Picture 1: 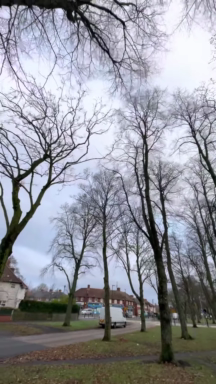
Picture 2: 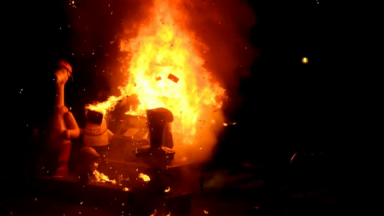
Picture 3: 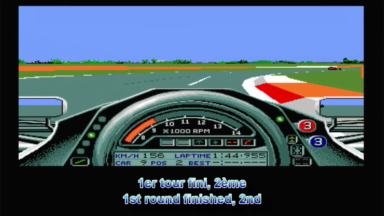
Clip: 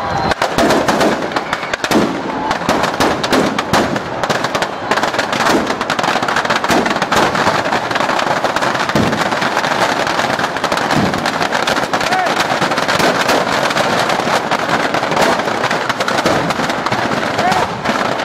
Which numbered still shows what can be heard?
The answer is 2